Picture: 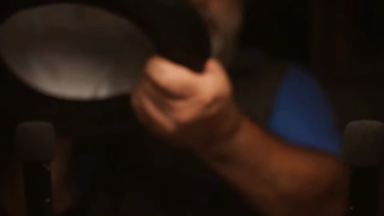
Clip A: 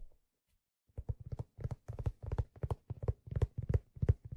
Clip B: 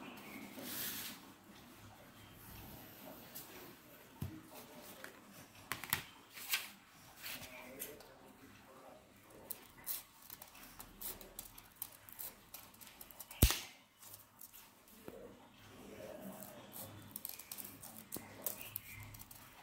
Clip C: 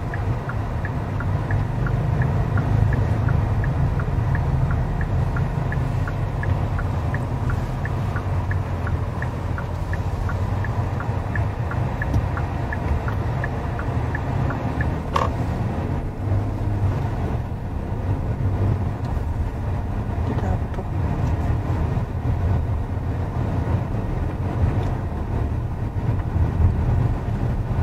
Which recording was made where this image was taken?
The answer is A